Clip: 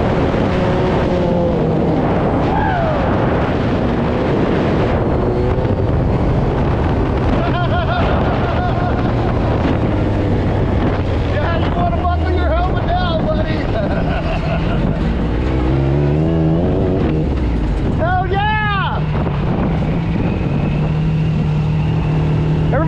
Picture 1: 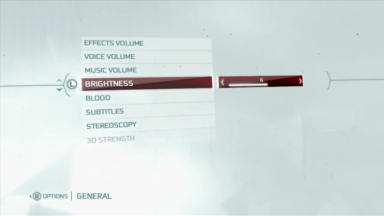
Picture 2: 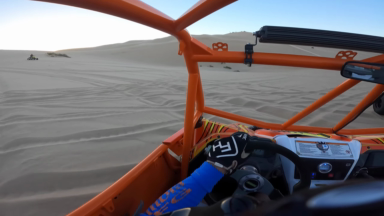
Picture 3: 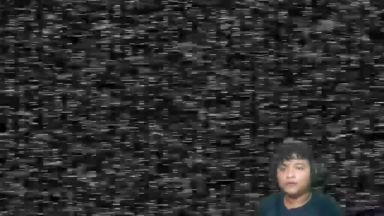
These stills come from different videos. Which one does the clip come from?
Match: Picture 2